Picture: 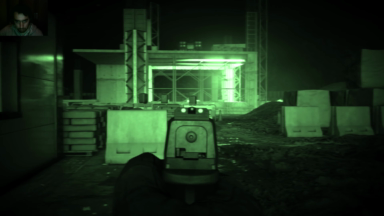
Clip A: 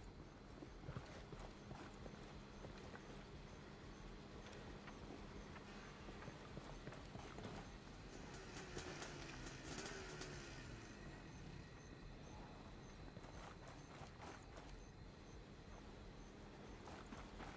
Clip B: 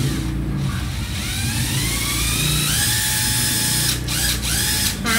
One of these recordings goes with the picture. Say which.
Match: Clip A